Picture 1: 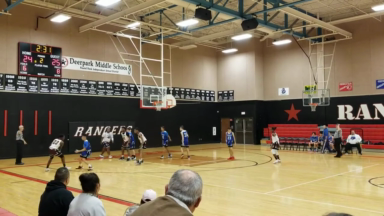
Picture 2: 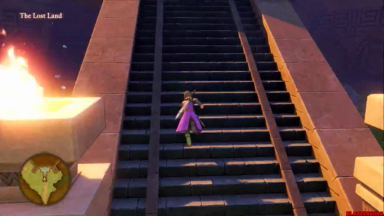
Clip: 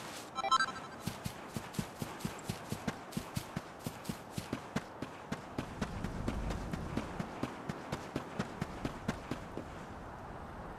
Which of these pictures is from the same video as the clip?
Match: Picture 2